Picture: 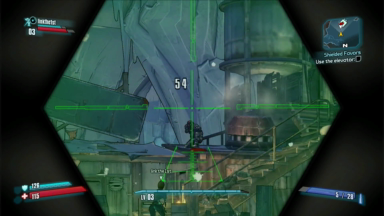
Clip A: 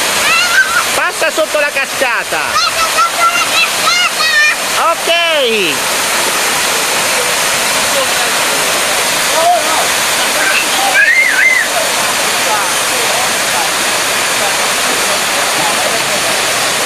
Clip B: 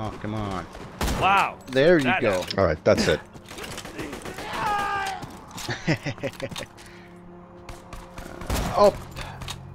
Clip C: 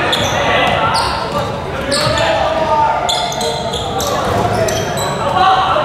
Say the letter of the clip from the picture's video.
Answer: B